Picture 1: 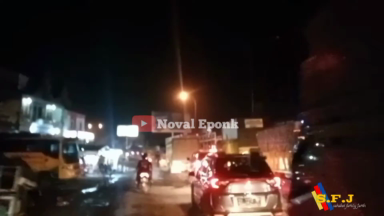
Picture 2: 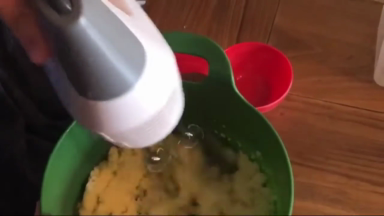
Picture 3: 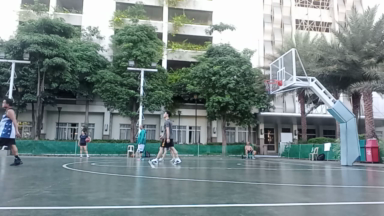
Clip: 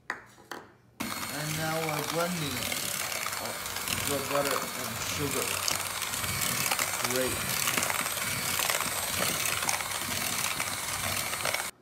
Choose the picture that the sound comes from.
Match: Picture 2